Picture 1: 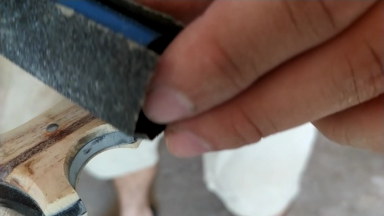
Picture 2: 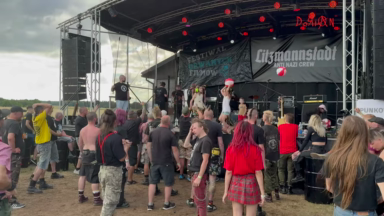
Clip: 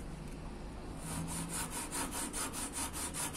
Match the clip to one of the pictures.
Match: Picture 1